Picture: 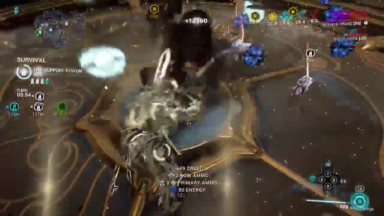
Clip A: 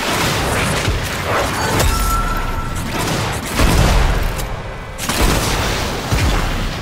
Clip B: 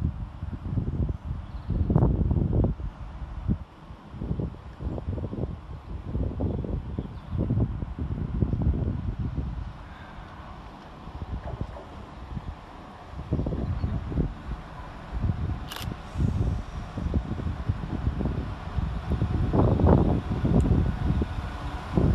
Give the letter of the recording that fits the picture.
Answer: A